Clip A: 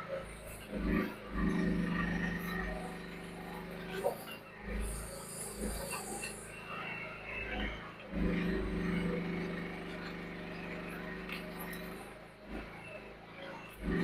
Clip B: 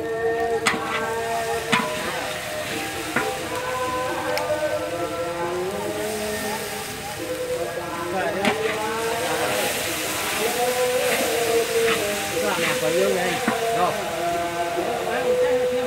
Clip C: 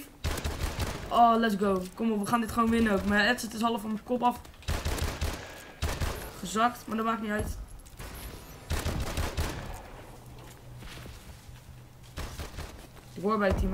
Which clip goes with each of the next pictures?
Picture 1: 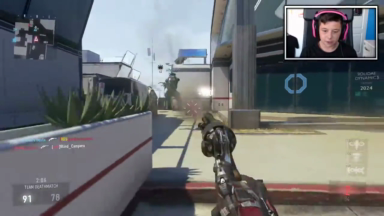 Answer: C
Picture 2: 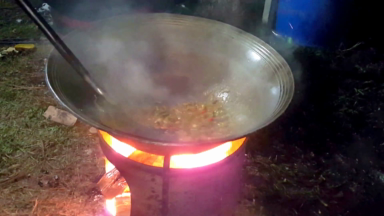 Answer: B